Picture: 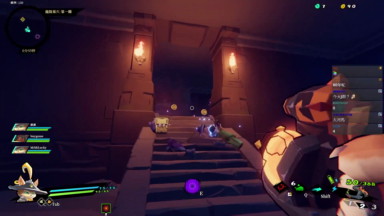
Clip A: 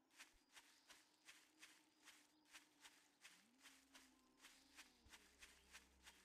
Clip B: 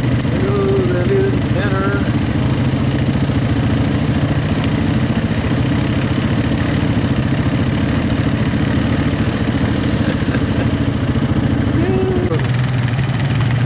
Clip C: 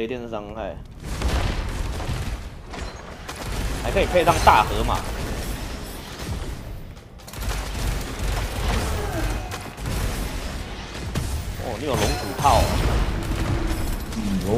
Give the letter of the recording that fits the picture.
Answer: C